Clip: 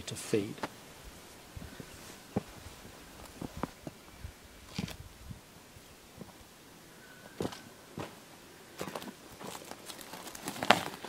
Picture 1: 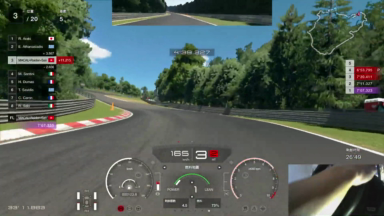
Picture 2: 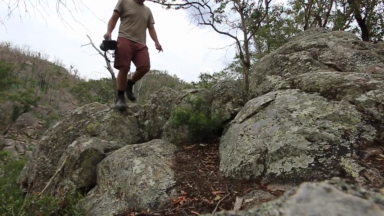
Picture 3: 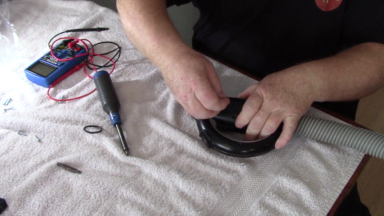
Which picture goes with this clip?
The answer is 2